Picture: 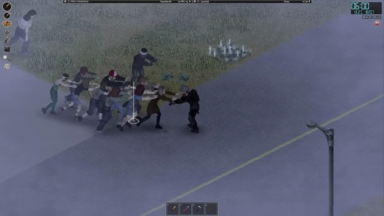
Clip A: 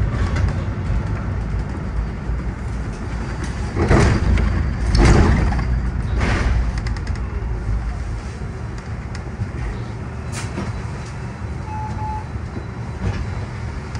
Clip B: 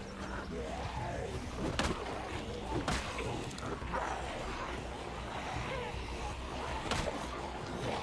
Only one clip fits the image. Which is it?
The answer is B